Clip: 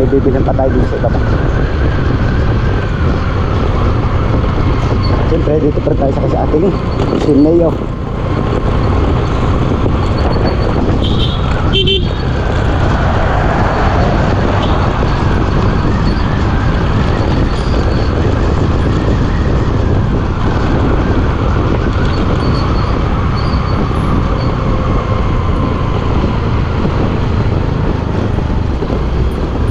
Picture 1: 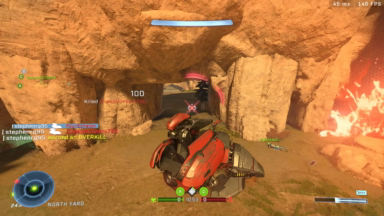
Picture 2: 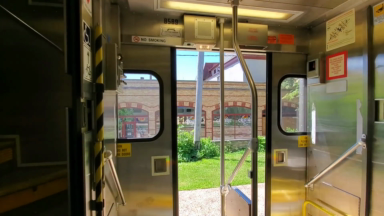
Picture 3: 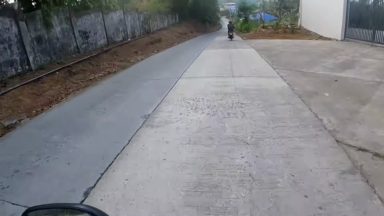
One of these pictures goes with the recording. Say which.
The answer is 3